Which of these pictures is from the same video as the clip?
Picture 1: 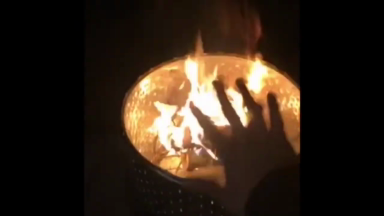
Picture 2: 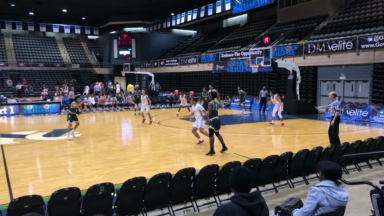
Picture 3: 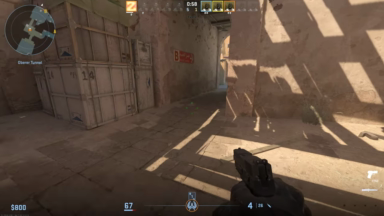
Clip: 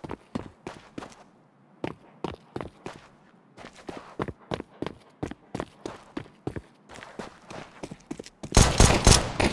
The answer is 3